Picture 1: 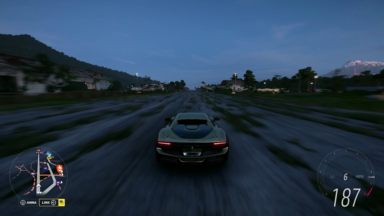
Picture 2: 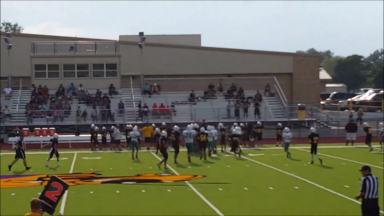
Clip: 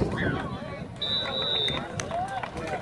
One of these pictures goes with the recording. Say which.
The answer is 2